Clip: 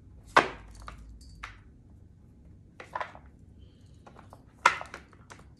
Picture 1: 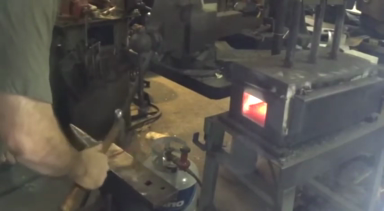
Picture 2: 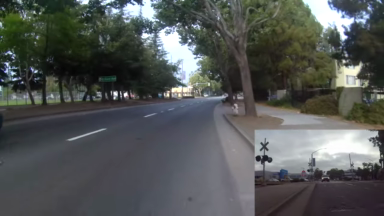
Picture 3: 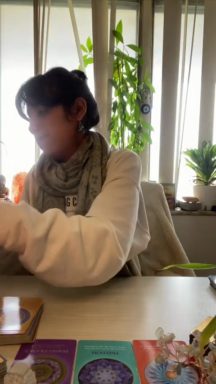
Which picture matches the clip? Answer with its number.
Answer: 3